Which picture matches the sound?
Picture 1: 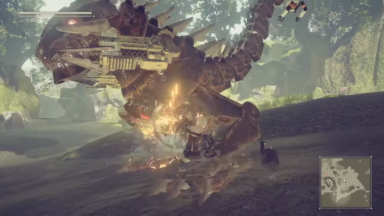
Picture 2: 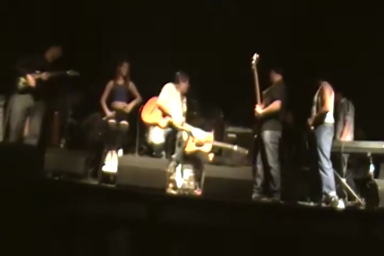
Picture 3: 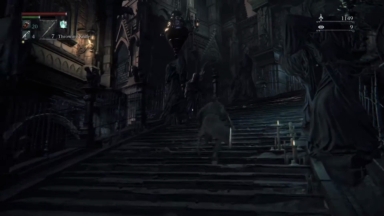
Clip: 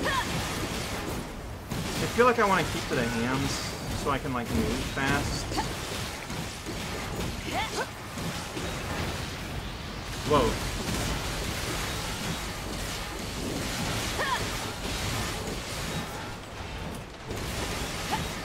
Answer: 1